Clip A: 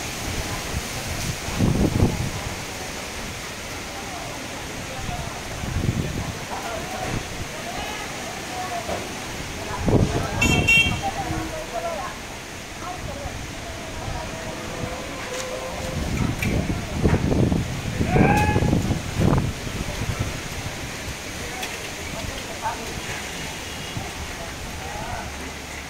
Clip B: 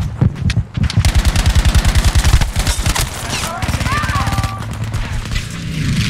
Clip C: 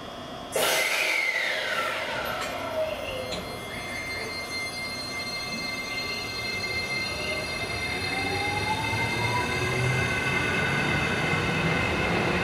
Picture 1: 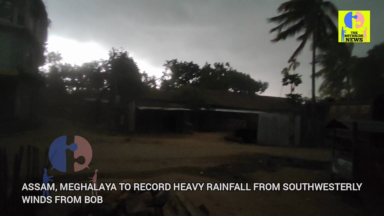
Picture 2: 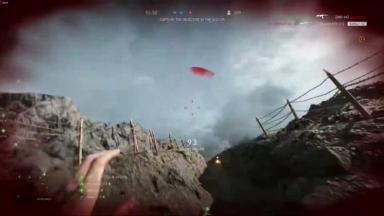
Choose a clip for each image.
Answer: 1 A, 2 B